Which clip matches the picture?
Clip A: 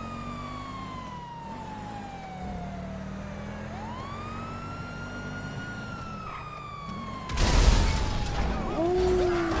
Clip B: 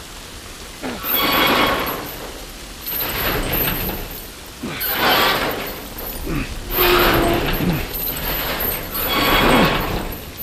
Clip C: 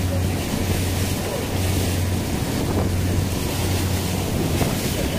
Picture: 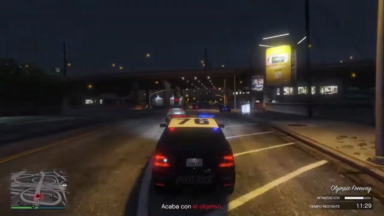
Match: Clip A